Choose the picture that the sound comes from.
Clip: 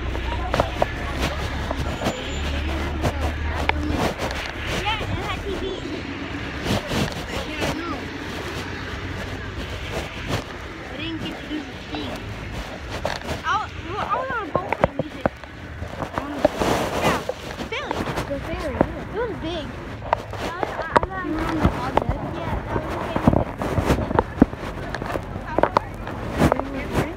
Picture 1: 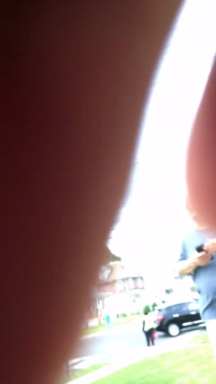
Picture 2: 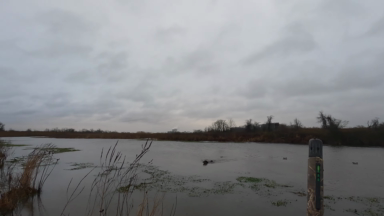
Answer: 1